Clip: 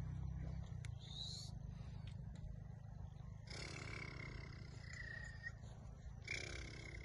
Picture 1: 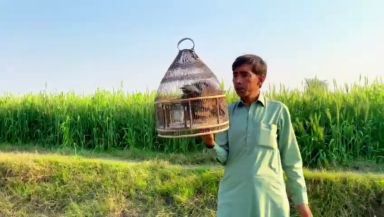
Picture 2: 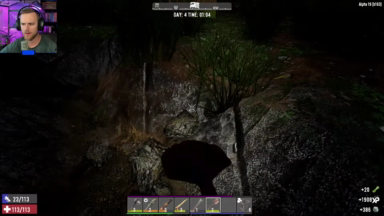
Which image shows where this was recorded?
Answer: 1